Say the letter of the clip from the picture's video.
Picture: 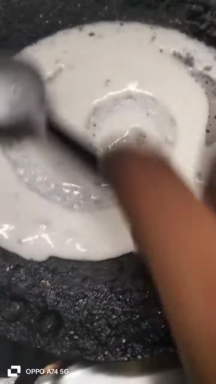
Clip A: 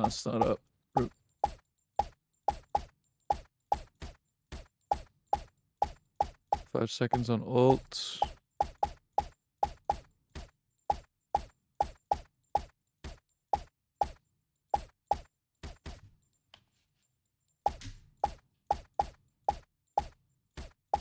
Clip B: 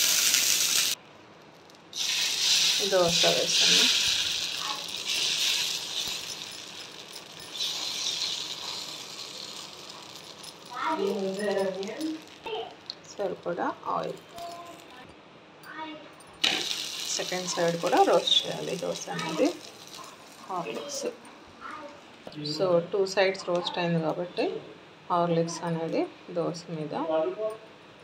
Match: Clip B